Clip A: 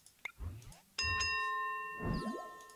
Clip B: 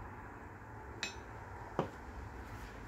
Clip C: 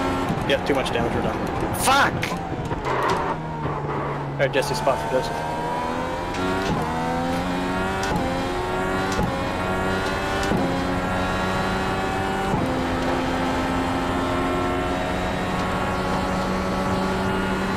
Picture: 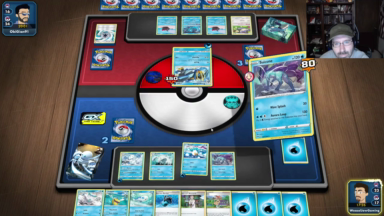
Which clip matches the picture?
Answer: A